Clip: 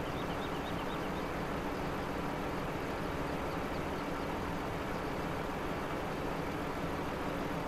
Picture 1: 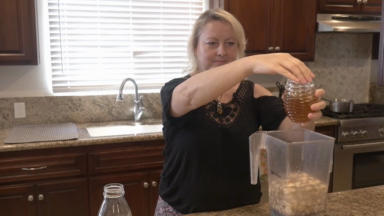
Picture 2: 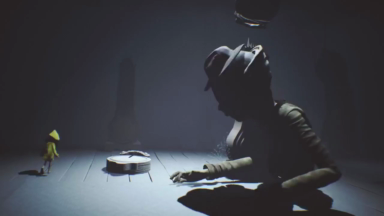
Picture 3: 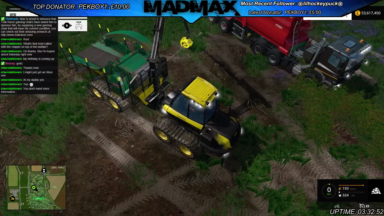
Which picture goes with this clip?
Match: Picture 3